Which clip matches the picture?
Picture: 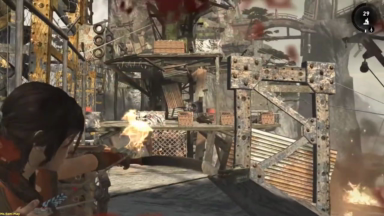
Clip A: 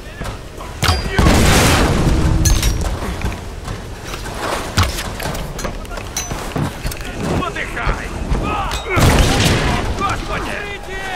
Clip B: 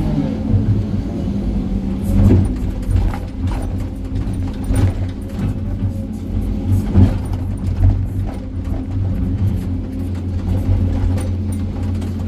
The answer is A